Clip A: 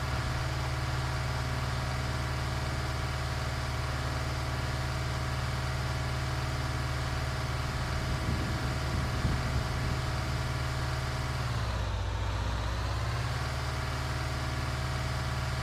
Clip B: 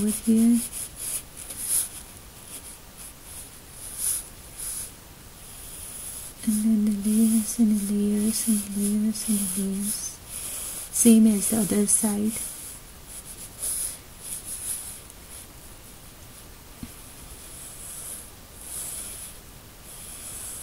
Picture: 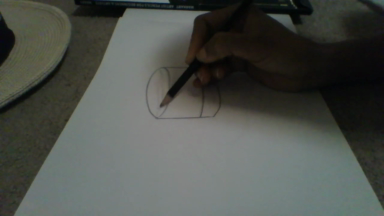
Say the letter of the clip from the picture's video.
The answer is B